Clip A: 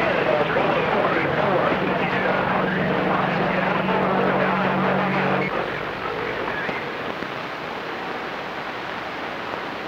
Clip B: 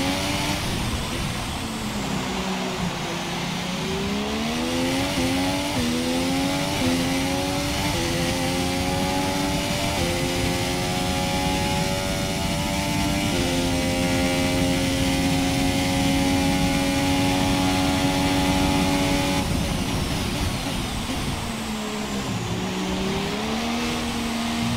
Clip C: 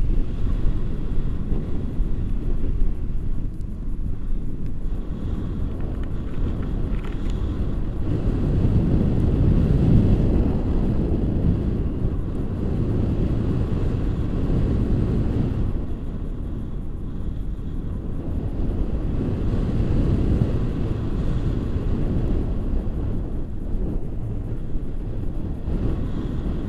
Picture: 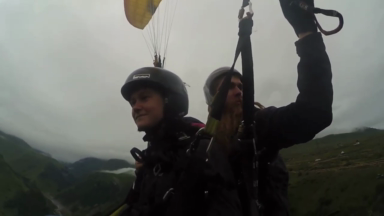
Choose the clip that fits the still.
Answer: C